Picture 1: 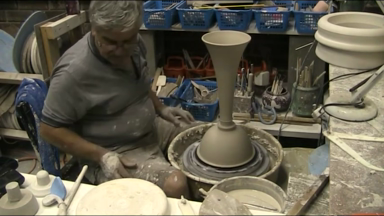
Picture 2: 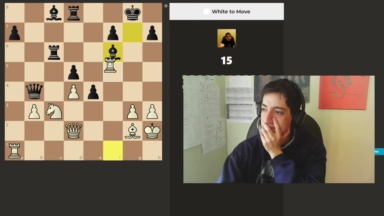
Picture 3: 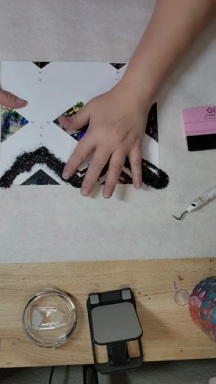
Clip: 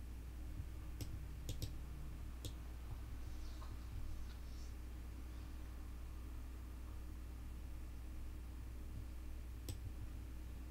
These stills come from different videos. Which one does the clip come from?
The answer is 2